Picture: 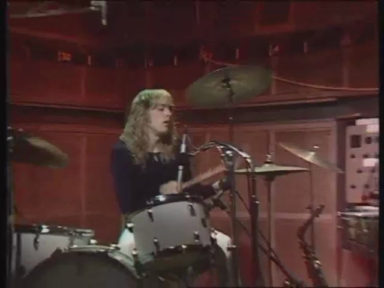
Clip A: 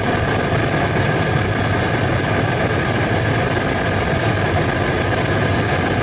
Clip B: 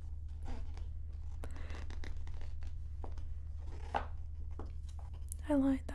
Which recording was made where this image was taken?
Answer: A